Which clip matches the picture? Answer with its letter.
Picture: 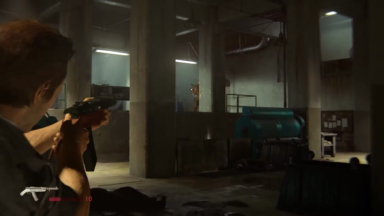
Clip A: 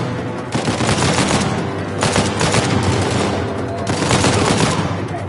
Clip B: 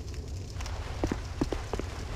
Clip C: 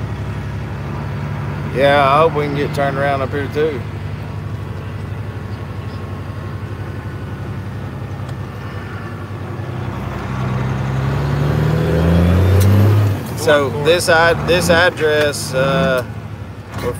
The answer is A